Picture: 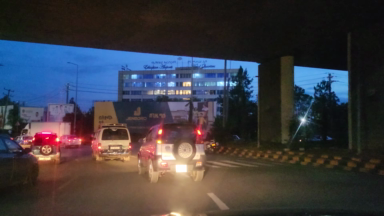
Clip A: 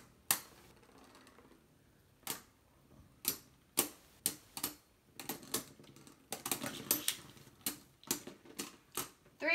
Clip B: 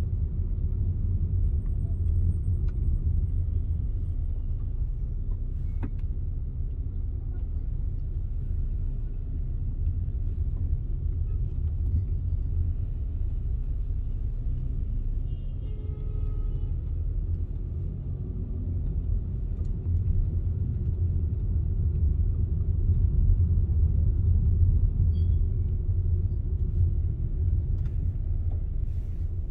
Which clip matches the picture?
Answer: B